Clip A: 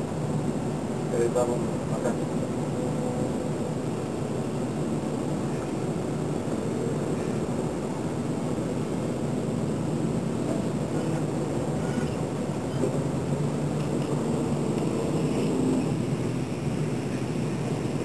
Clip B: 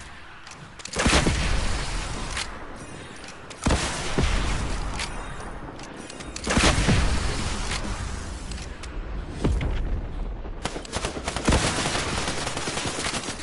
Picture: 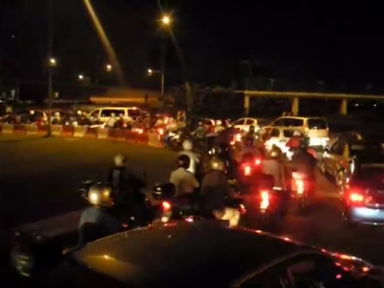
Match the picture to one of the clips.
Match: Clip A